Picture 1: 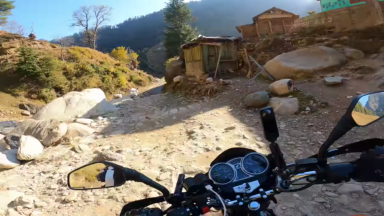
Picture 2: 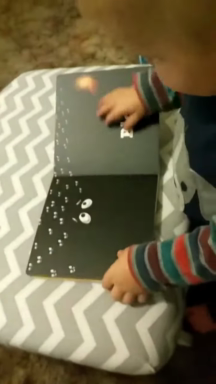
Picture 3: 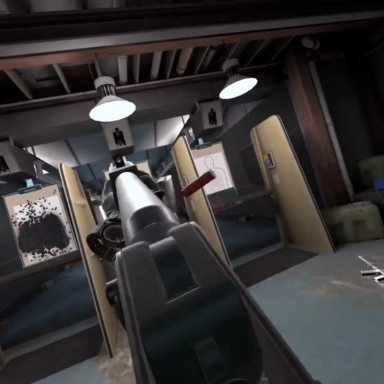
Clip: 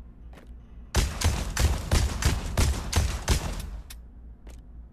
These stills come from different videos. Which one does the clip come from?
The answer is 3